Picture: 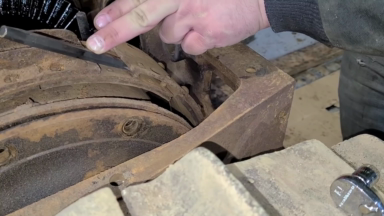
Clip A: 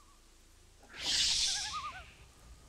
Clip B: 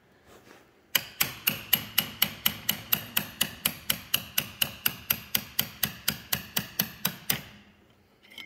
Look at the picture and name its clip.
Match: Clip B